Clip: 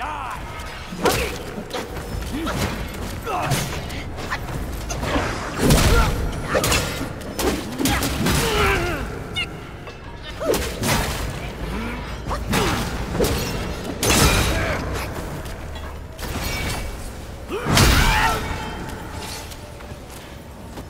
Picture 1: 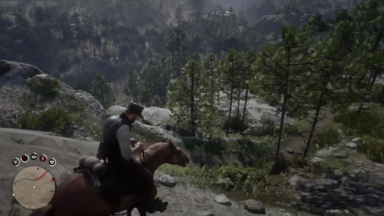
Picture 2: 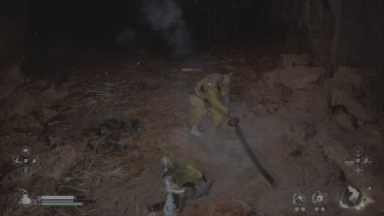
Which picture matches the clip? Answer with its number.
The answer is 2